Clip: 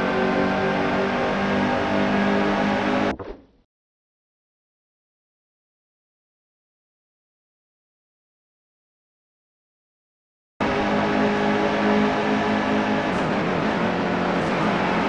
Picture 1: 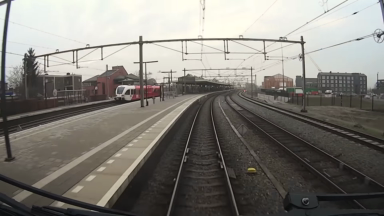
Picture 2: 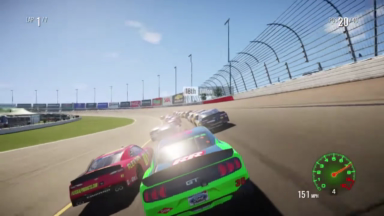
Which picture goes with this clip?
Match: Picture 2